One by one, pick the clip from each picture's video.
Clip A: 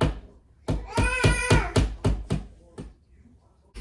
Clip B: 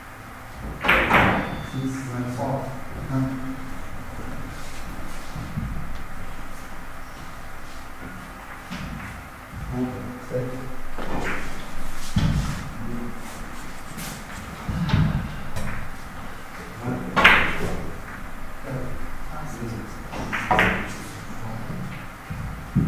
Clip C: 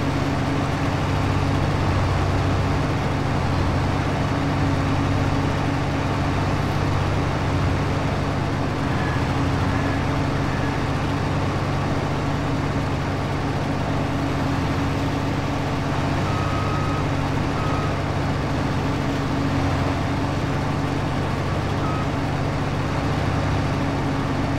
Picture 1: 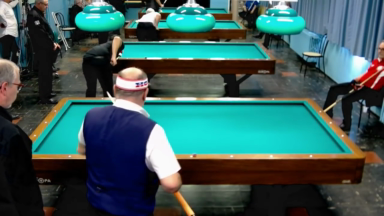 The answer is B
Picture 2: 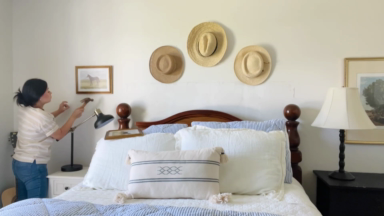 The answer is A